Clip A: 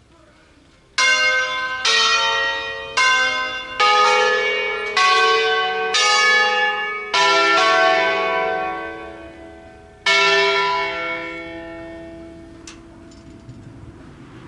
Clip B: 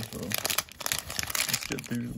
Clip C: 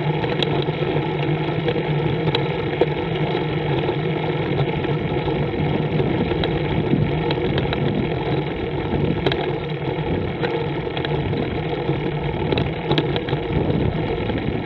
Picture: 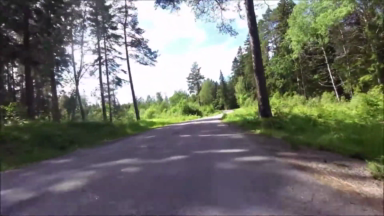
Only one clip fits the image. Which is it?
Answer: C